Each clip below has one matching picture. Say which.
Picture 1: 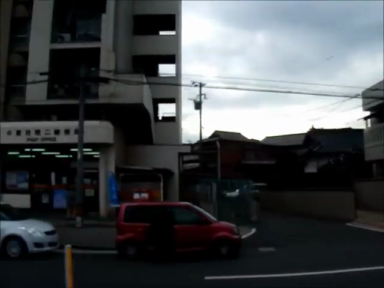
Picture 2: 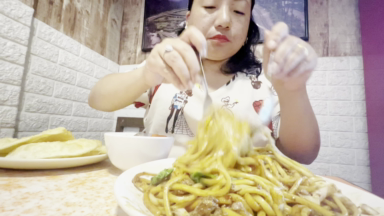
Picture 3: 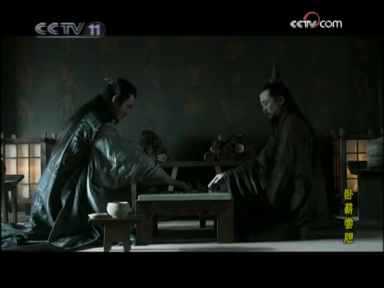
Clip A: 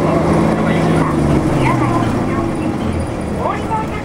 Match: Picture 1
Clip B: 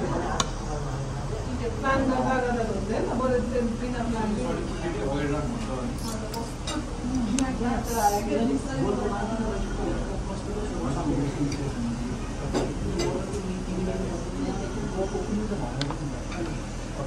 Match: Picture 2